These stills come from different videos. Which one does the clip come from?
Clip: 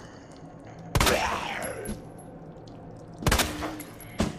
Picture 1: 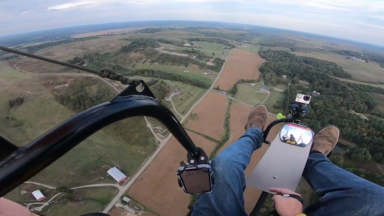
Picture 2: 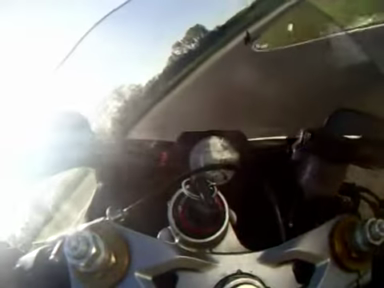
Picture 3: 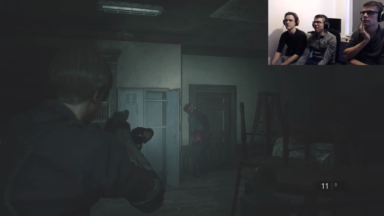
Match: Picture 3